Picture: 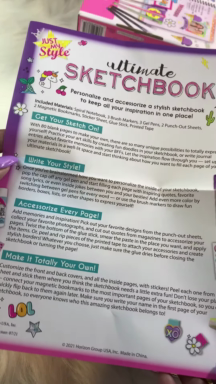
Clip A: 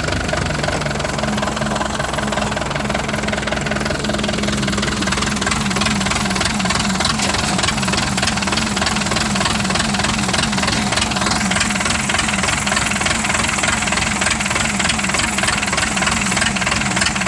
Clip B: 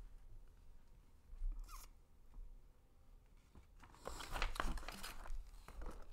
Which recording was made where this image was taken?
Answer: B